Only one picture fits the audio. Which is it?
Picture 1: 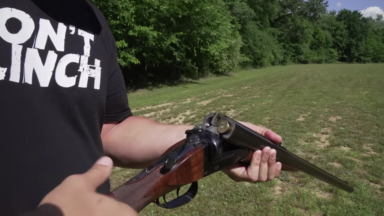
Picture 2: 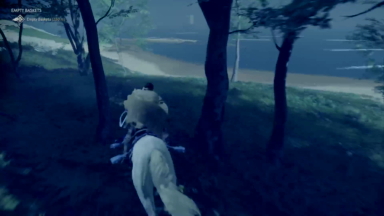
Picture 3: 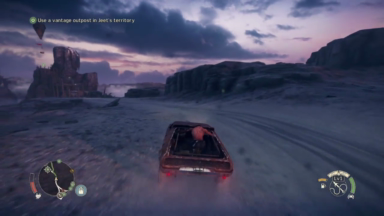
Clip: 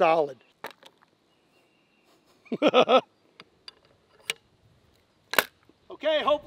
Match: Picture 1